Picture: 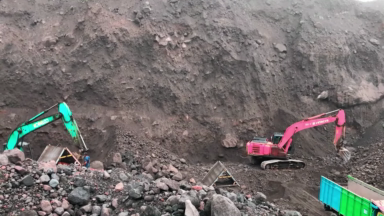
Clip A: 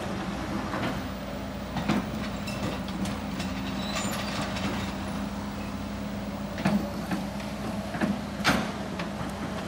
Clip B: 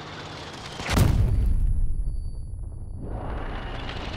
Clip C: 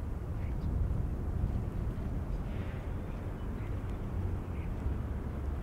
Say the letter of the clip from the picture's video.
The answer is A